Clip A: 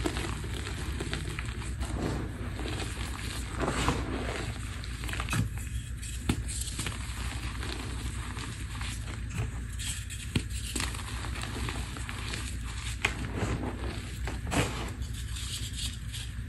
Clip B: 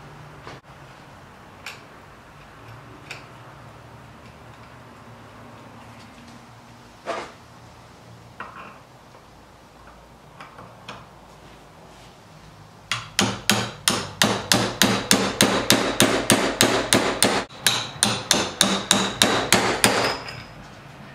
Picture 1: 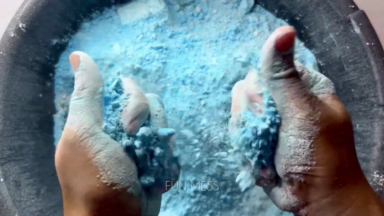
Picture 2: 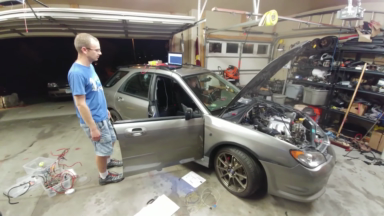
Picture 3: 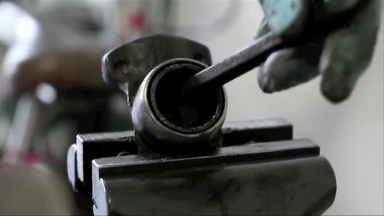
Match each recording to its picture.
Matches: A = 1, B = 3